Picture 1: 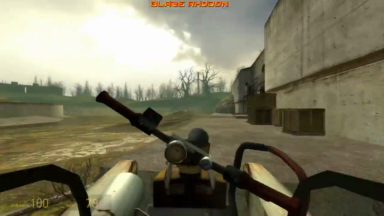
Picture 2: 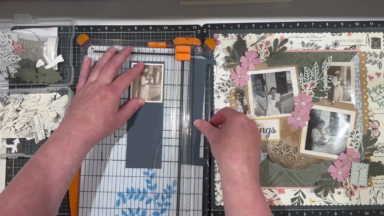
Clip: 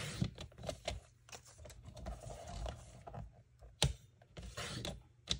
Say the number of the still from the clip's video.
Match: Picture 2